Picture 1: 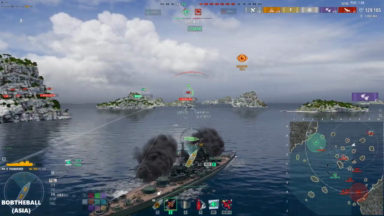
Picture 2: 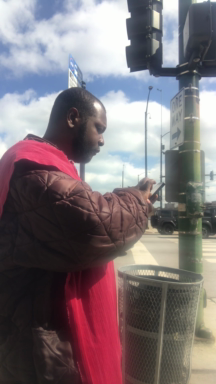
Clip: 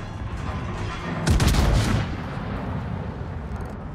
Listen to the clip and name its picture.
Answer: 1